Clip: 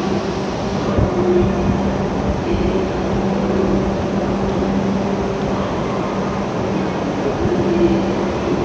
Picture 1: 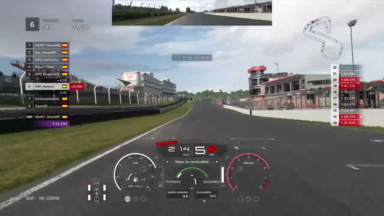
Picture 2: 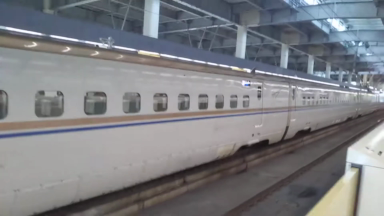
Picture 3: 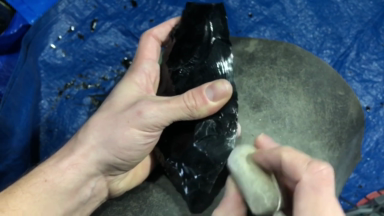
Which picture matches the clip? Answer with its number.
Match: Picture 2